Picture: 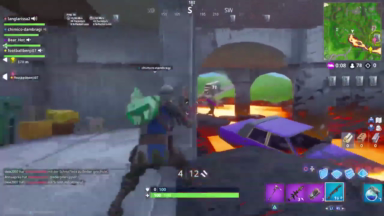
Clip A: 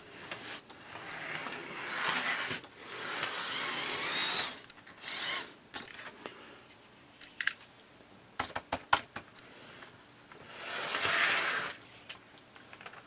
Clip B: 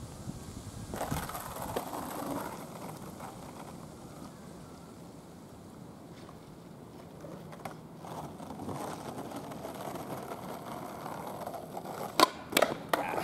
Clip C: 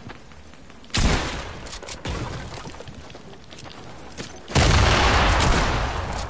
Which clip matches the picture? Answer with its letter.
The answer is C